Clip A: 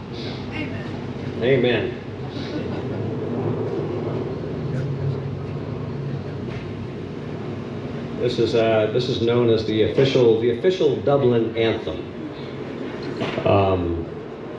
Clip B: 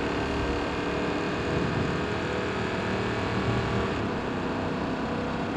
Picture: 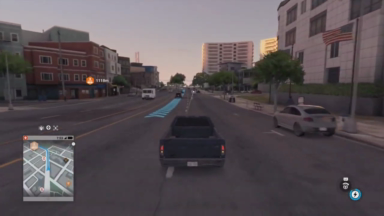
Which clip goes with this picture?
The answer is B